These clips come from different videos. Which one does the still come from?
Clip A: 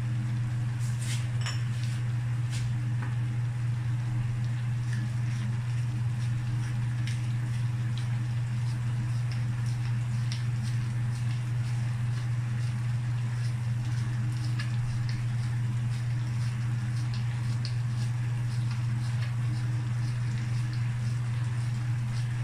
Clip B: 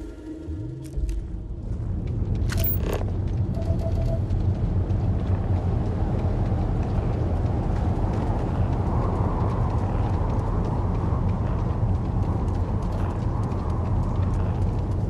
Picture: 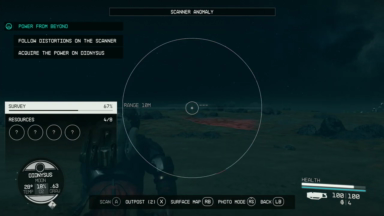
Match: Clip B